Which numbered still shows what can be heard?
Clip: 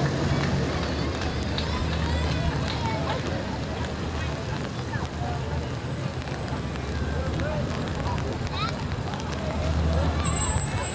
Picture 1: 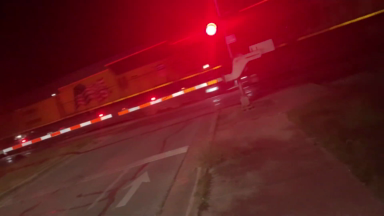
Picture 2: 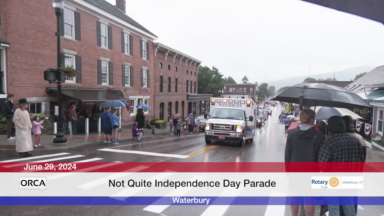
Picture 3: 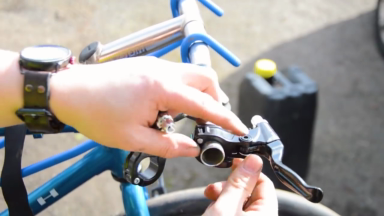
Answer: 2